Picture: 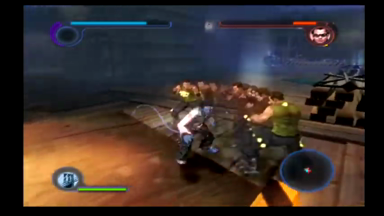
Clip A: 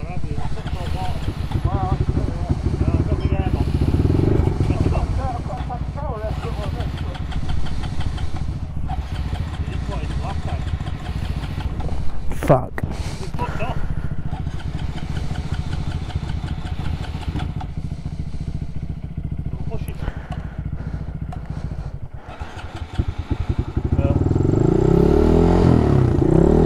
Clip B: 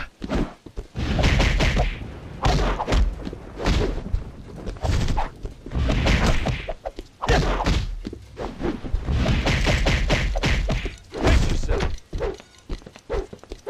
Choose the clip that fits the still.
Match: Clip B